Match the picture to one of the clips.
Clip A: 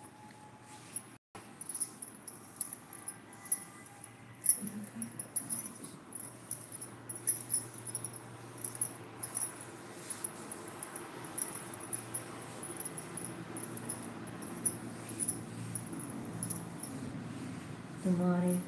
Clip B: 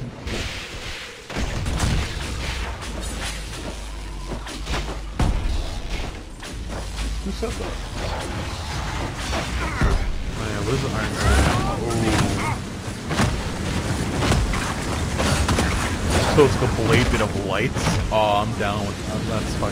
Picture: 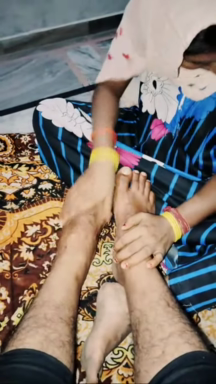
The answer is A